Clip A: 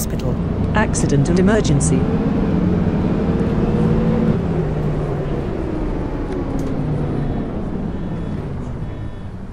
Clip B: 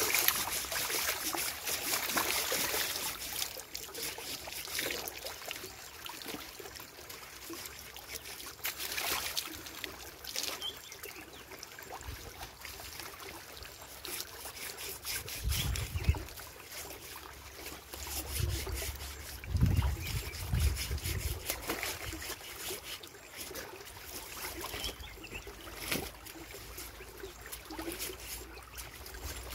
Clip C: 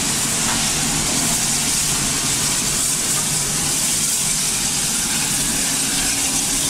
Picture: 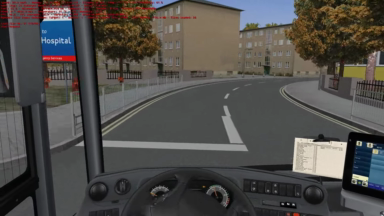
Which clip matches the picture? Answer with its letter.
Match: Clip A